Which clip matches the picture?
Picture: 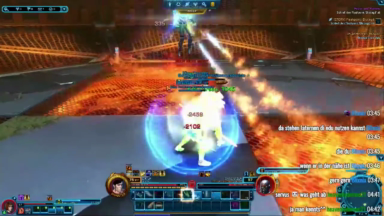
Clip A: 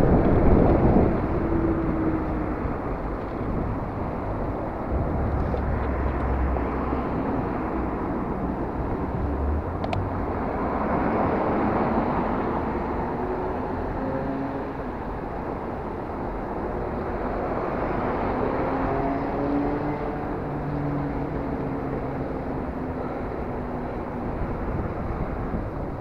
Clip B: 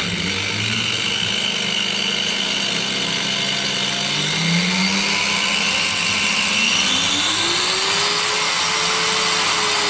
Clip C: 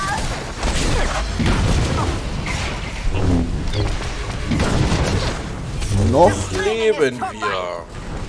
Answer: C